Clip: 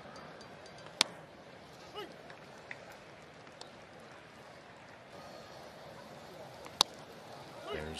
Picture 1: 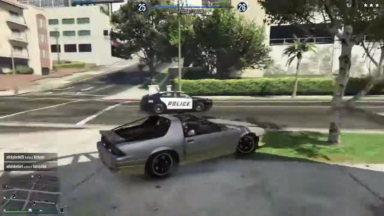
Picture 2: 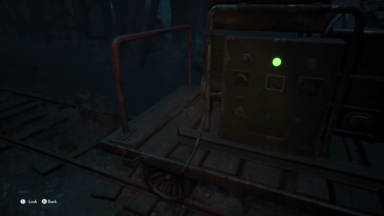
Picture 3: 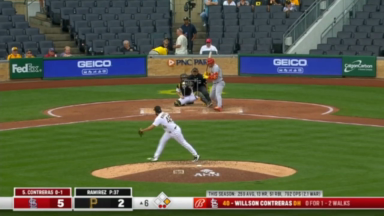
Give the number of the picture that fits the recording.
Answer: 3